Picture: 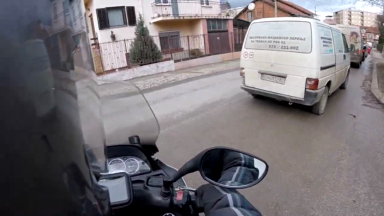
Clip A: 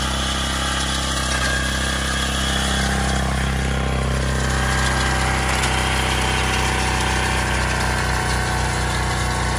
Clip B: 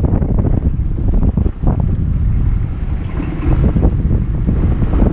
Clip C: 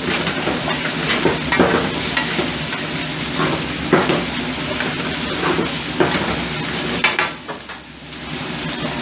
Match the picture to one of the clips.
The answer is B